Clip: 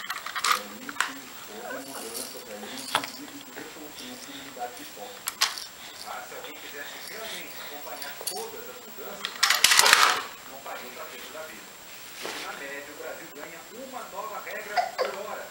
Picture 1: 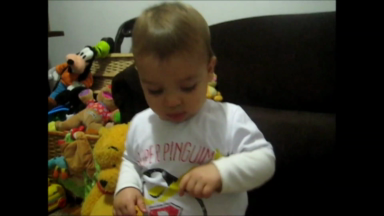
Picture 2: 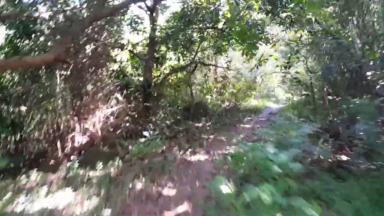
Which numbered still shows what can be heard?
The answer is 1